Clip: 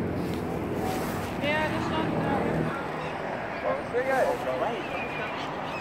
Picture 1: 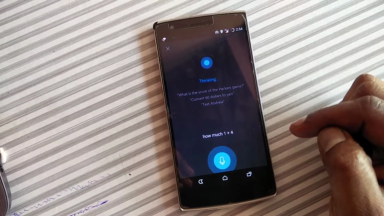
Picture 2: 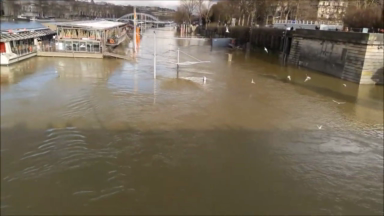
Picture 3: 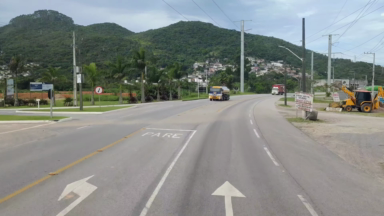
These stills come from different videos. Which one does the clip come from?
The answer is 2